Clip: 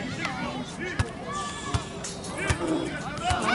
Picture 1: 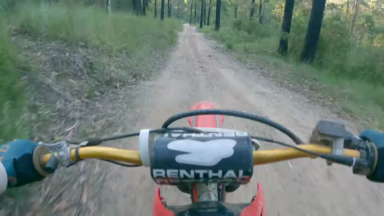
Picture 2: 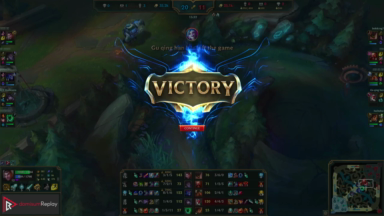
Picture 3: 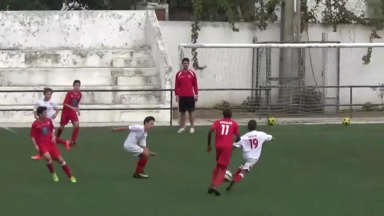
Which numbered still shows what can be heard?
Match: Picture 3